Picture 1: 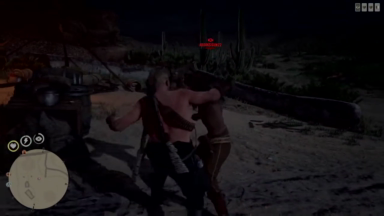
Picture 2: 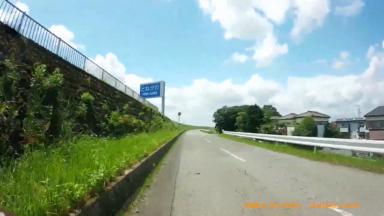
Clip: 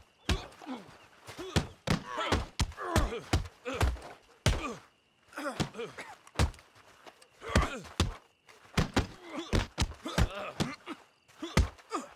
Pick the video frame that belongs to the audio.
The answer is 1